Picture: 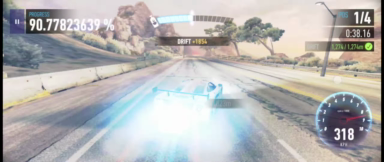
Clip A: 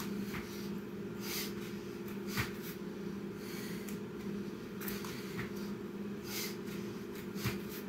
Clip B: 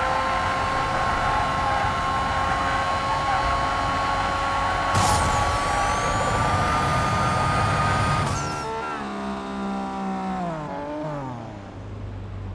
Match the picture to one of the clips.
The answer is B